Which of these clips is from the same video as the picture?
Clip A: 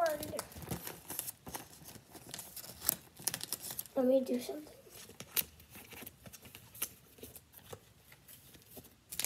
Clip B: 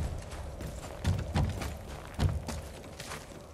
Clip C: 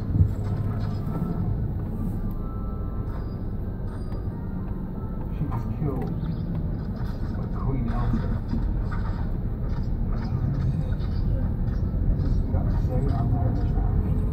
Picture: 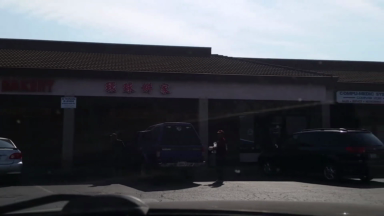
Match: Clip C